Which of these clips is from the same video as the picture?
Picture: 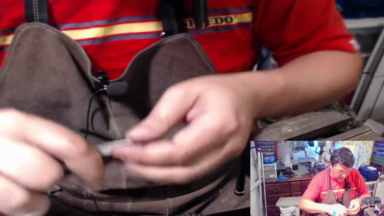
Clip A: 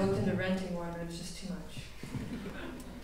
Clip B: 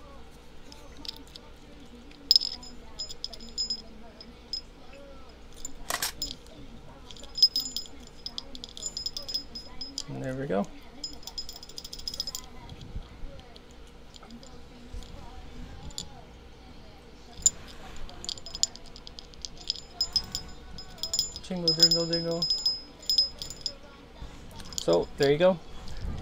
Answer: B